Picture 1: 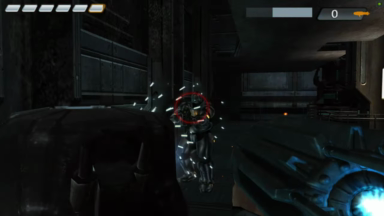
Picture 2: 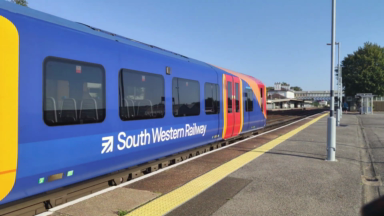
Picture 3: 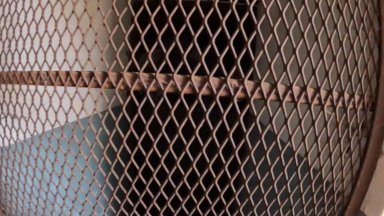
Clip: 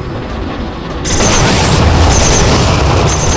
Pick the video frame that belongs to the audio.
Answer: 1